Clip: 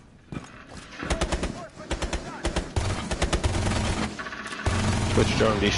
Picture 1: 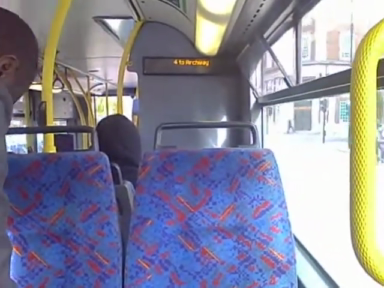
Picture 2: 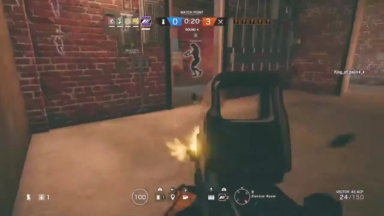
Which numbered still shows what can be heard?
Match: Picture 2